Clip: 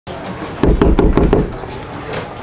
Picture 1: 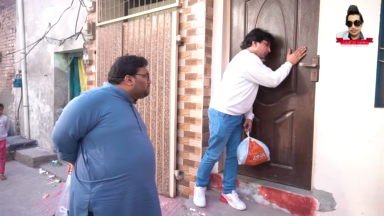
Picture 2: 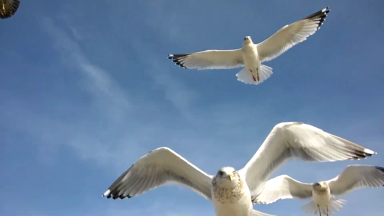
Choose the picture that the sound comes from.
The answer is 1